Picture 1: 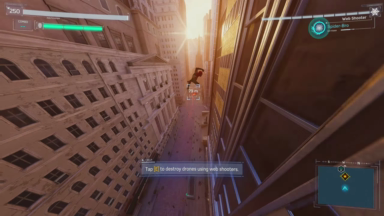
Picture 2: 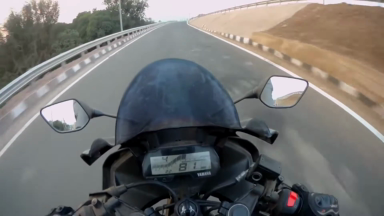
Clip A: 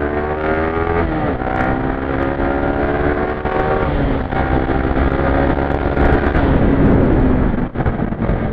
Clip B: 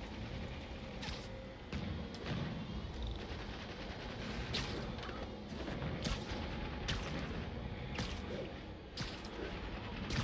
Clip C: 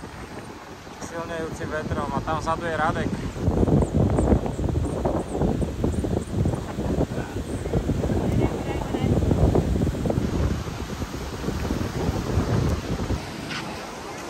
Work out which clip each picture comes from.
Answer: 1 B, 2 A